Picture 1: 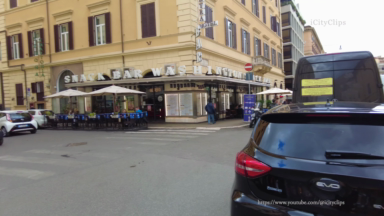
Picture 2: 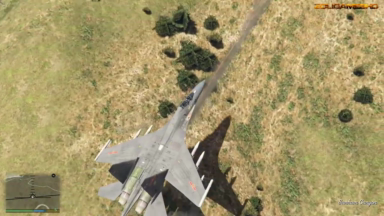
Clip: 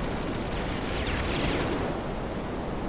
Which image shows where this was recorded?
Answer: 2